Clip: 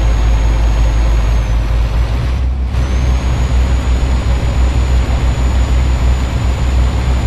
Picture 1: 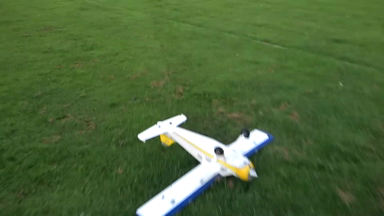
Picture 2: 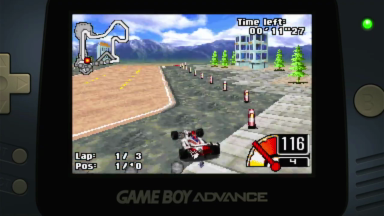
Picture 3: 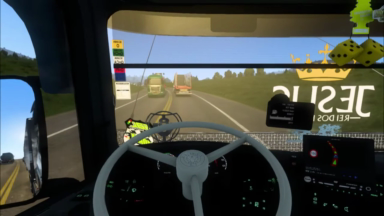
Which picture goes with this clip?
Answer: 3